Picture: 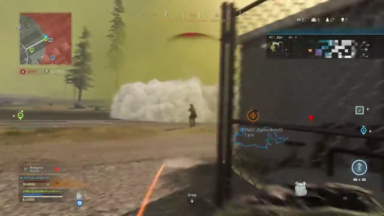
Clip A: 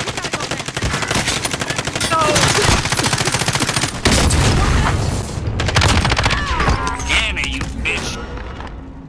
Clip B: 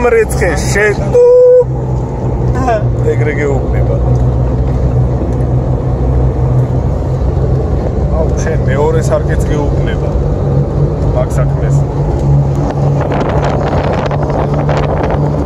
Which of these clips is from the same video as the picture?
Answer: A